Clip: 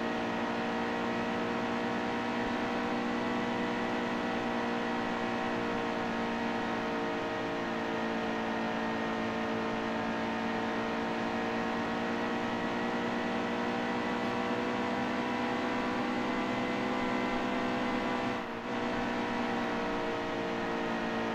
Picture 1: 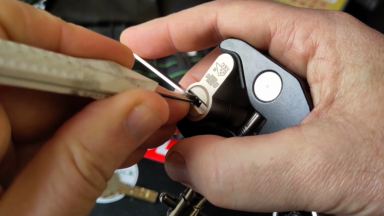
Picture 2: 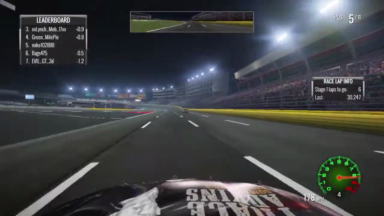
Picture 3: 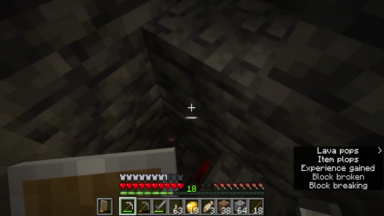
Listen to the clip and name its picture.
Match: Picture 2